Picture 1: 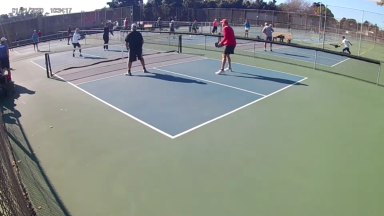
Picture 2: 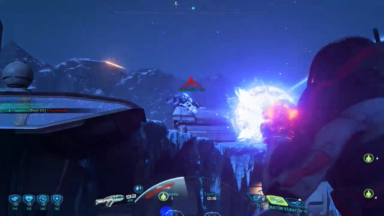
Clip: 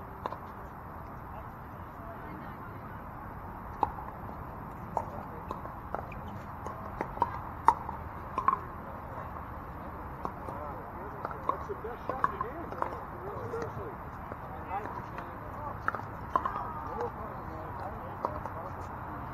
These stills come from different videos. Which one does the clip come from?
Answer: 1